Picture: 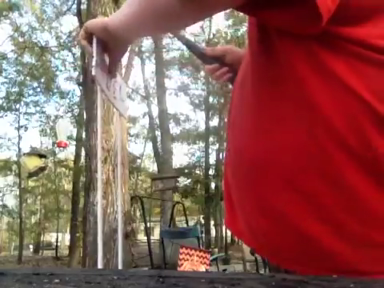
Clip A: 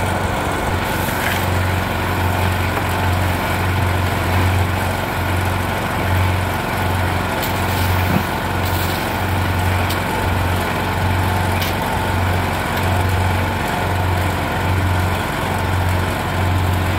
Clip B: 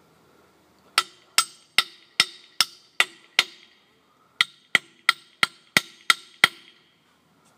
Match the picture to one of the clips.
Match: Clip B